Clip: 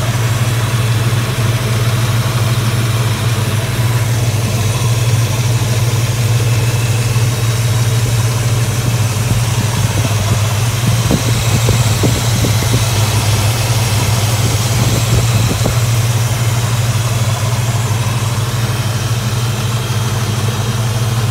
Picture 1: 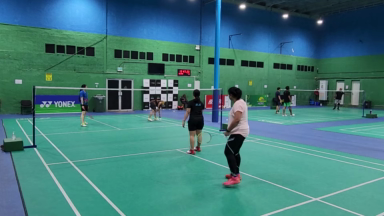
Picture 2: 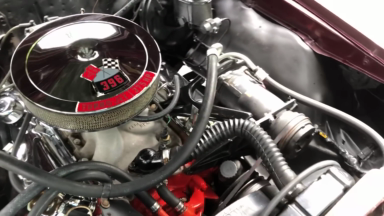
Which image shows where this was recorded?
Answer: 2